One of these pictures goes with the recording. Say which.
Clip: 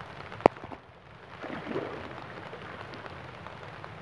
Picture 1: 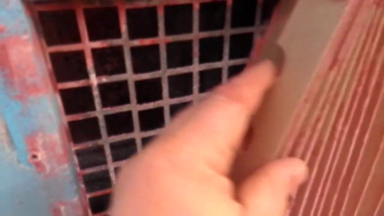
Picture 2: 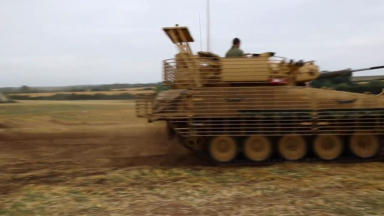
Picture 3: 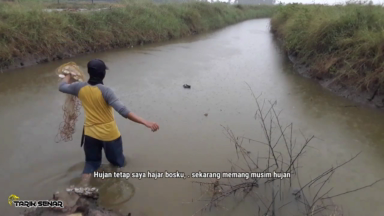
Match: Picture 3